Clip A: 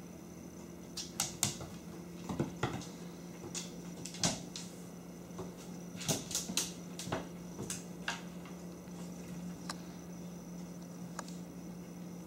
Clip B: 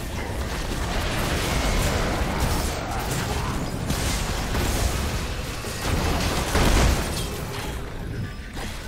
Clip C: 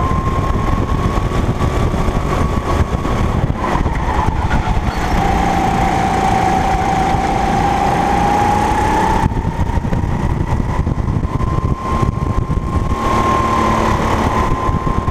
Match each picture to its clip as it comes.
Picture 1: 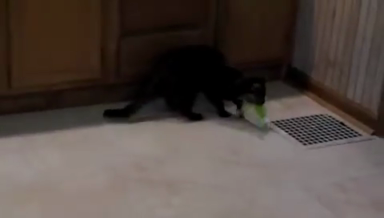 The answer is A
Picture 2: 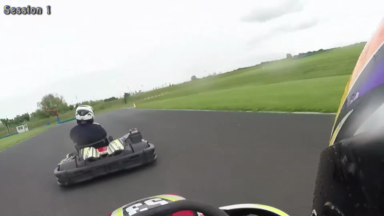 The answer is C